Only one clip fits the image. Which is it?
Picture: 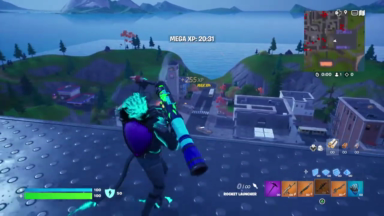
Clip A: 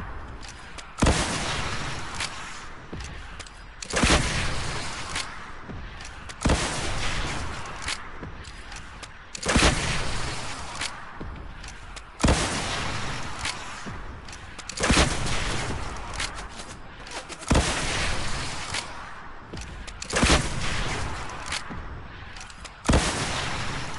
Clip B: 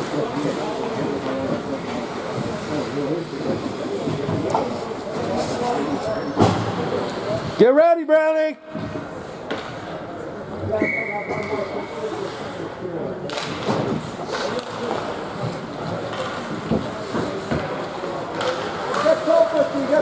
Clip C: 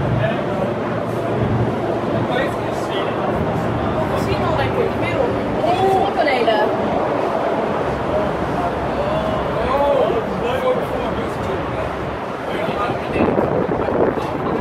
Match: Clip A